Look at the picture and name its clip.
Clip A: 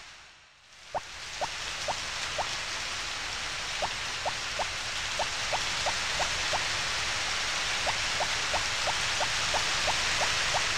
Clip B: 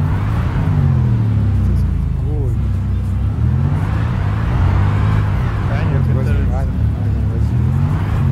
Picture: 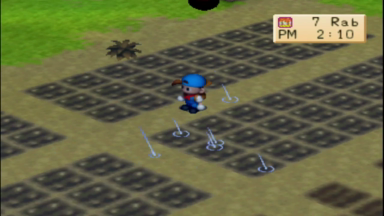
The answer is A